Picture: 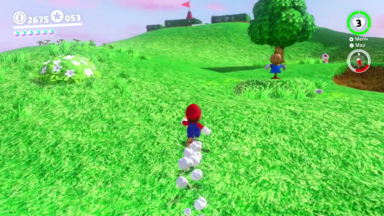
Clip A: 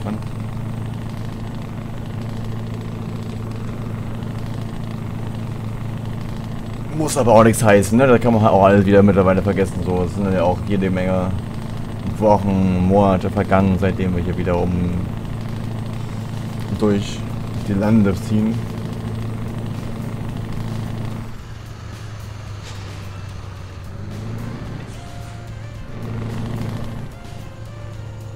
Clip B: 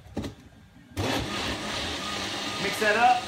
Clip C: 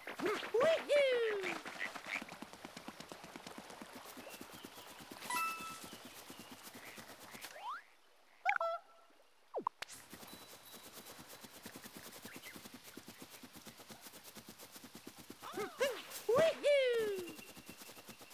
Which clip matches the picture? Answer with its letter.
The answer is C